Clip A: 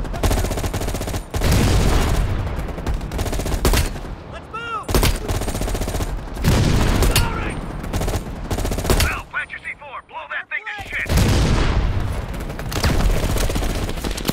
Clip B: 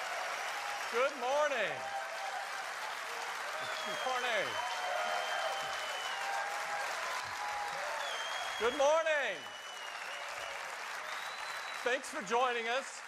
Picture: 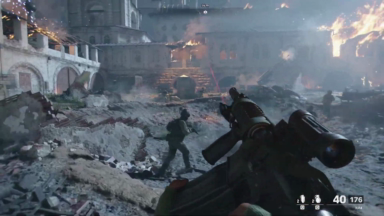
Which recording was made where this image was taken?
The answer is A